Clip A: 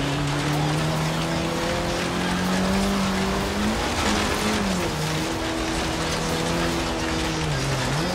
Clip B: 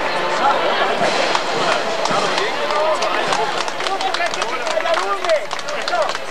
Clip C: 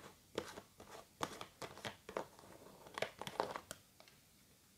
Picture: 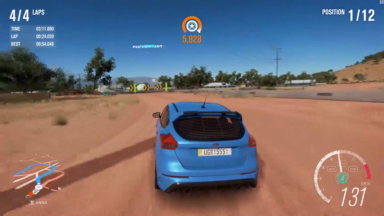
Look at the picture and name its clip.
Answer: A